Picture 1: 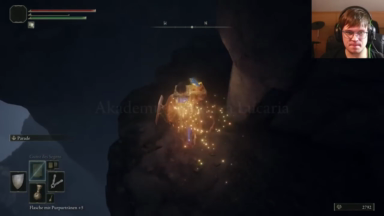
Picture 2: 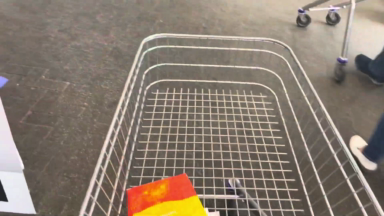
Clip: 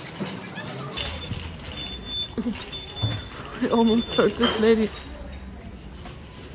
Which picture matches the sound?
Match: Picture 2